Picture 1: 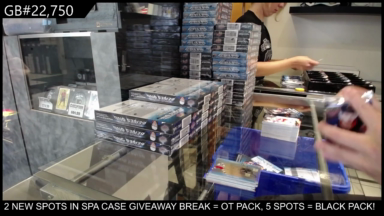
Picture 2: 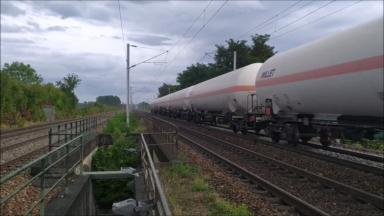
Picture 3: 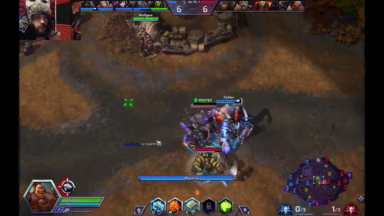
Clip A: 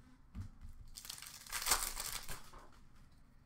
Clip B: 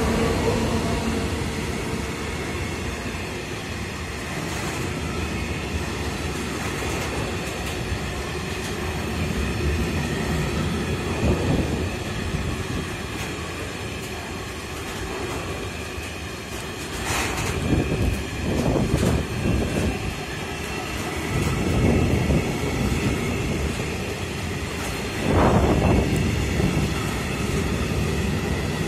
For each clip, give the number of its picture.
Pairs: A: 1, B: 2